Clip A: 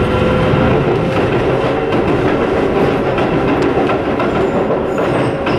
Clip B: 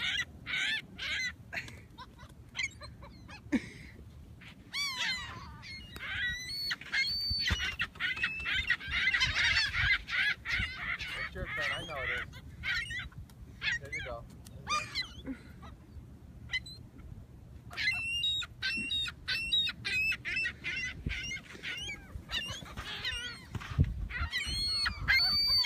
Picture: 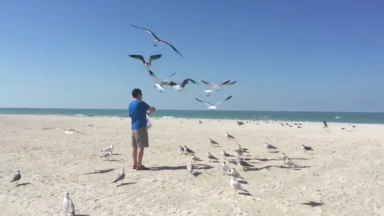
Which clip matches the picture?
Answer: B